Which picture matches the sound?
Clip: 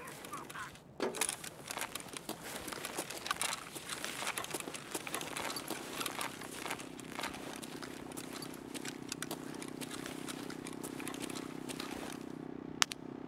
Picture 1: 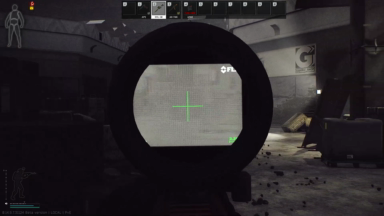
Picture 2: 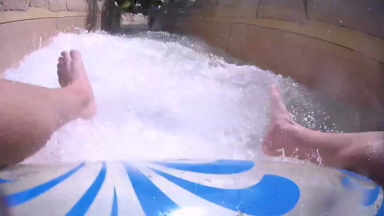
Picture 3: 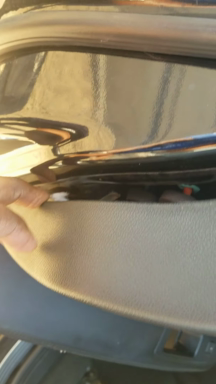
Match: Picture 1